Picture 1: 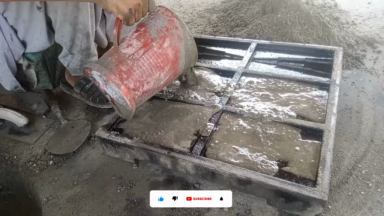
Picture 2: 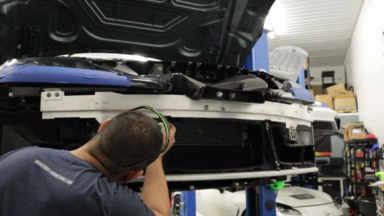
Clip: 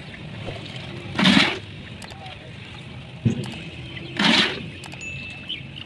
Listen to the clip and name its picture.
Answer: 1